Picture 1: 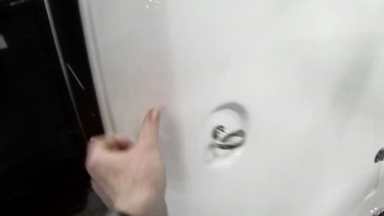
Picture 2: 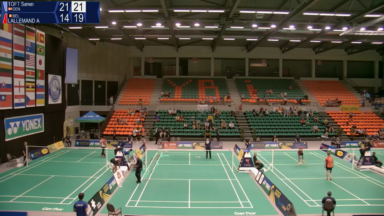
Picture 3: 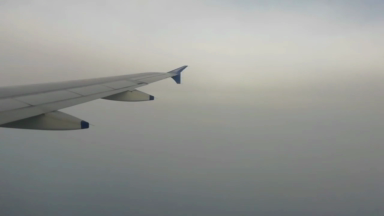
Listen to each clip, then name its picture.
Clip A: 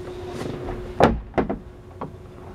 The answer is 1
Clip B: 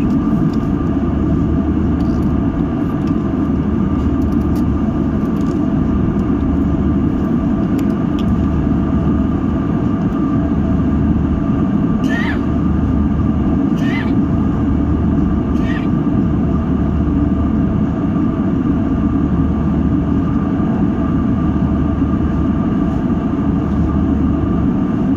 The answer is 3